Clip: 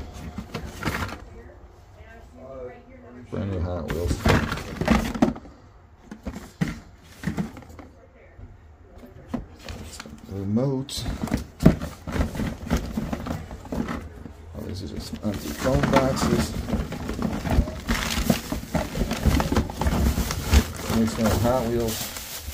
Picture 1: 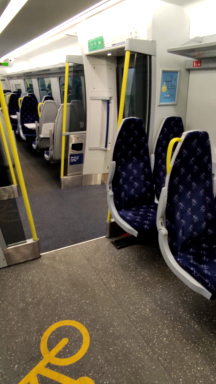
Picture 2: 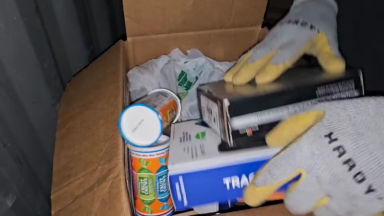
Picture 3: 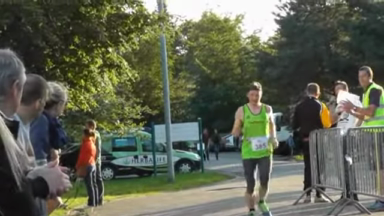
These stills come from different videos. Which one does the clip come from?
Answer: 2